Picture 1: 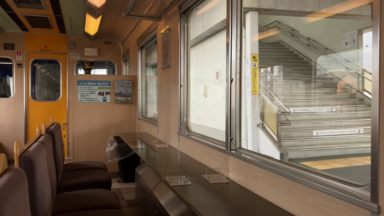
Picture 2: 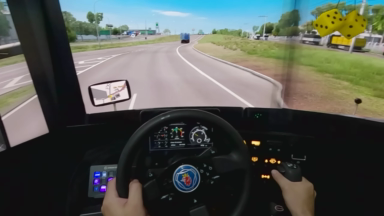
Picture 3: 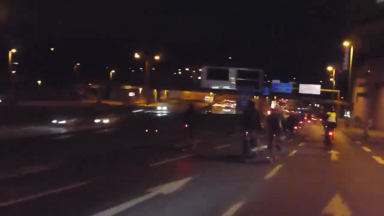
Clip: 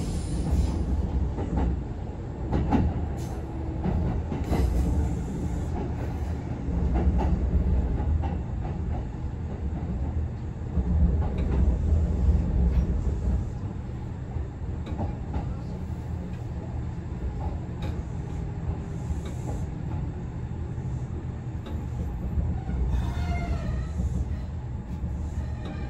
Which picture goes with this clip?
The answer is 1